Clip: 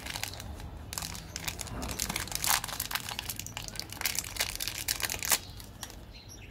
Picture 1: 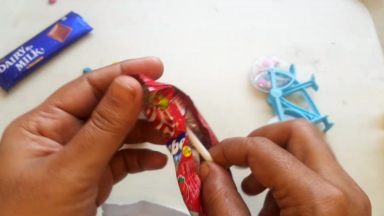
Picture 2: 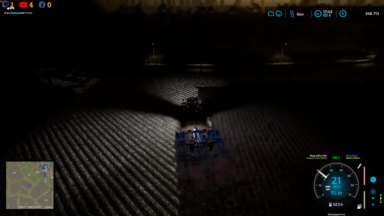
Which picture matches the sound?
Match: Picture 1